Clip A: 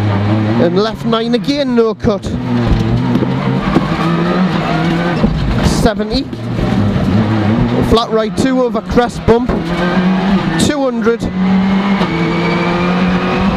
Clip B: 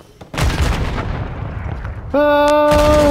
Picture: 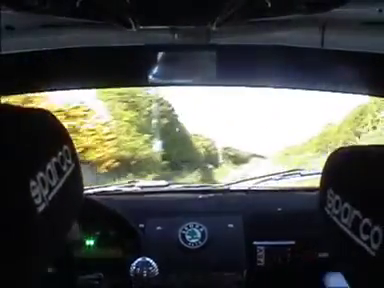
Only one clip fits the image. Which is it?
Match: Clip A